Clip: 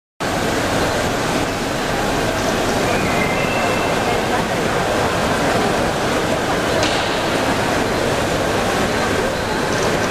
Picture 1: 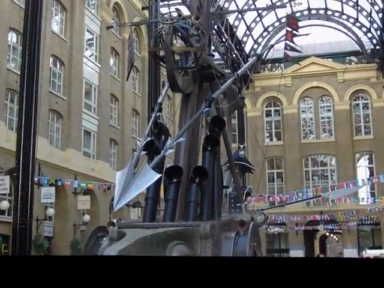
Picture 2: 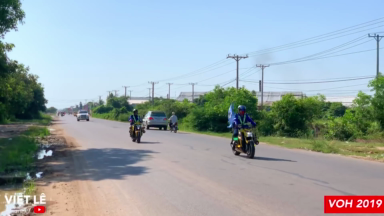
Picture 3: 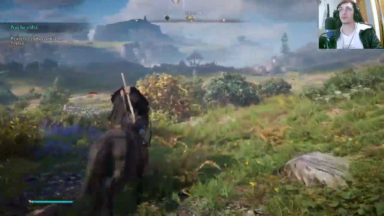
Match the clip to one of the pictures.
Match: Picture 1